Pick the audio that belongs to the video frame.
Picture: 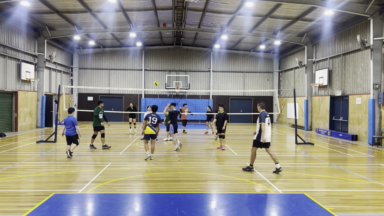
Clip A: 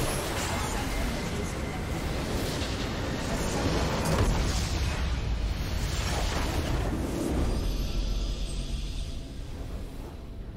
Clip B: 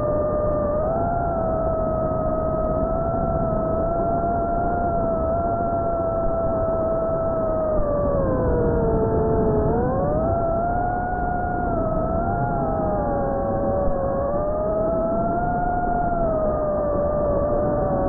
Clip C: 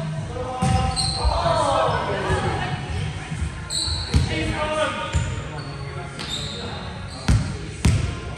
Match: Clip C